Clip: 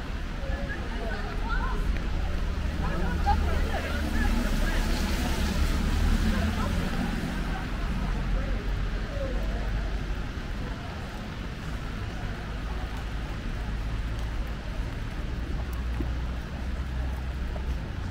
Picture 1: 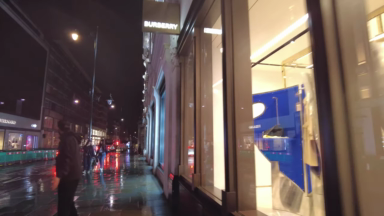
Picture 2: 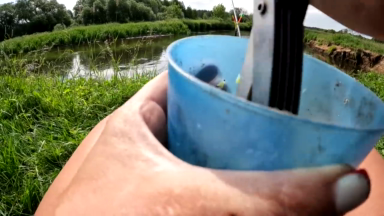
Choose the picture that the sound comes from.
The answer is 1